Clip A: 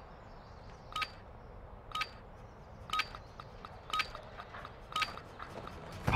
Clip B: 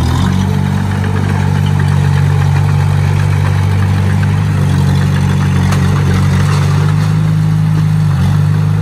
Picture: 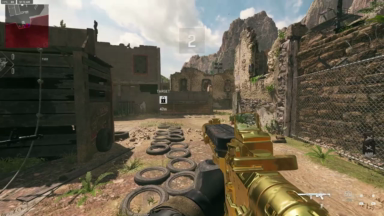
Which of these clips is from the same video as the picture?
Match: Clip A